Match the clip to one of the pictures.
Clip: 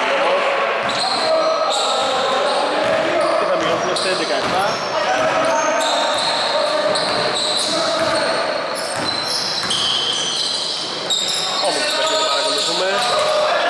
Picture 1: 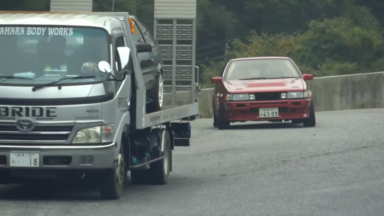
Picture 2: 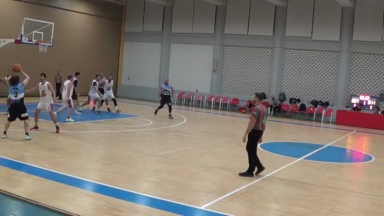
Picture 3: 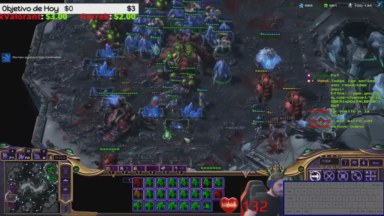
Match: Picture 2